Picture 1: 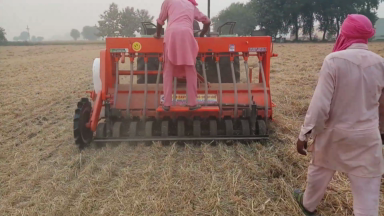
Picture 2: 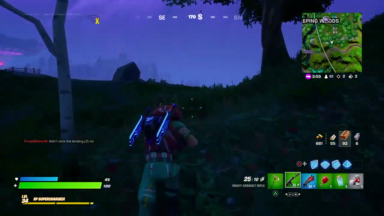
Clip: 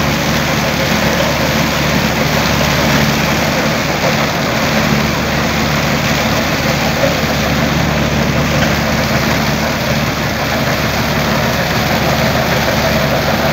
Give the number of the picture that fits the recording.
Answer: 1